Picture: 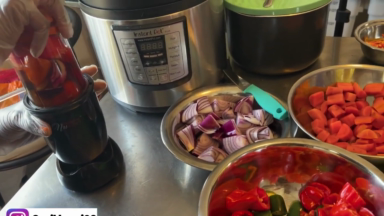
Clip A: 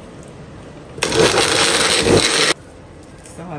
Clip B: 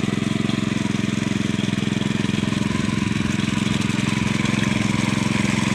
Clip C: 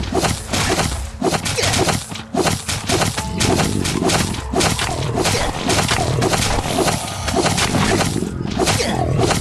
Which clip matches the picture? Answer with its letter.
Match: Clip A